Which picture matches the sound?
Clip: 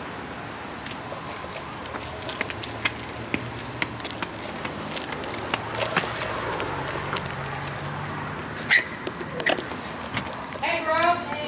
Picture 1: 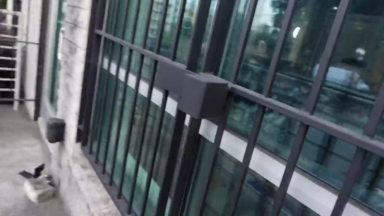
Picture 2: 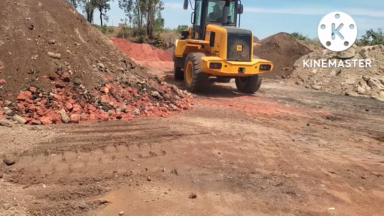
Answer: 1